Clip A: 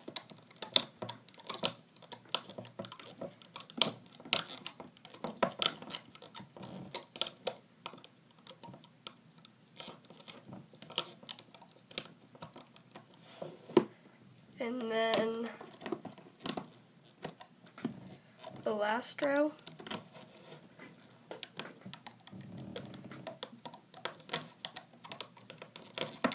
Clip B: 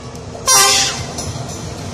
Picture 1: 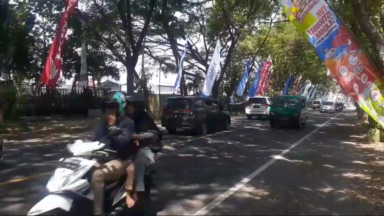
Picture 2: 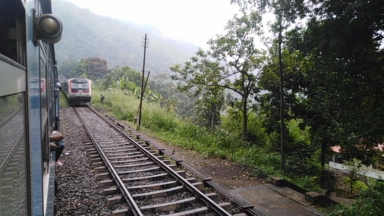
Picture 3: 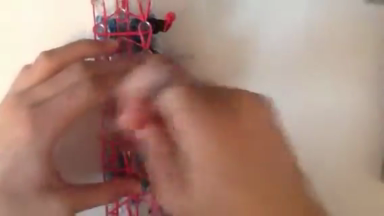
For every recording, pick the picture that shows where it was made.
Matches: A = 3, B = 2